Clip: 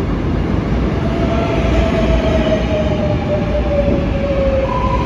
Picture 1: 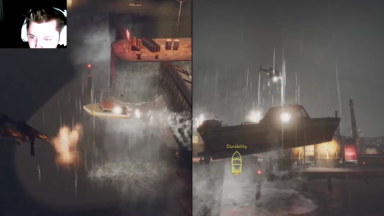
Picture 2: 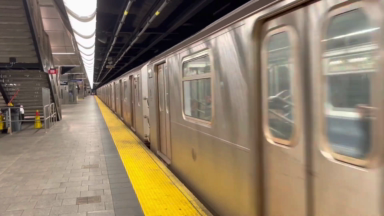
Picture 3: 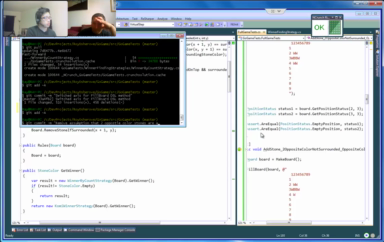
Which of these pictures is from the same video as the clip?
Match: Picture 2